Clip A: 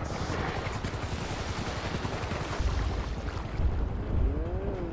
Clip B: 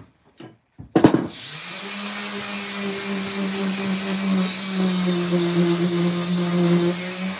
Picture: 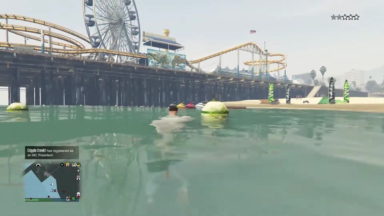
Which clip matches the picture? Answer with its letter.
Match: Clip A